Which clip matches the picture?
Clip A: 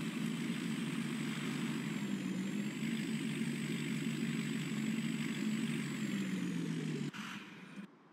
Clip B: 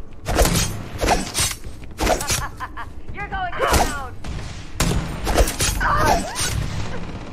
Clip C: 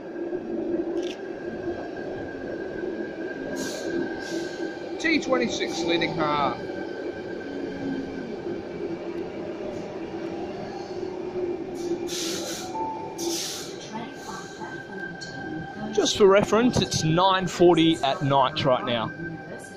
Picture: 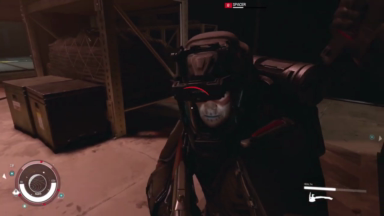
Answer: B